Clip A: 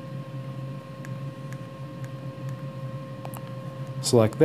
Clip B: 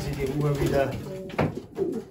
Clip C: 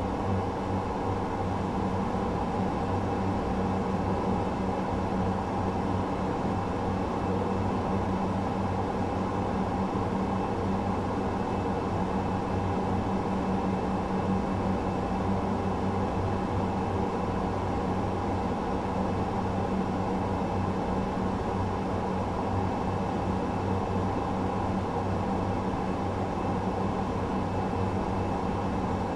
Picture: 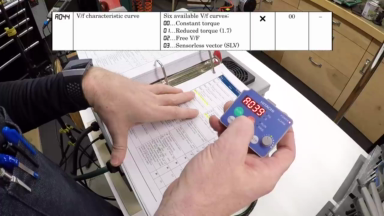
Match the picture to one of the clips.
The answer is A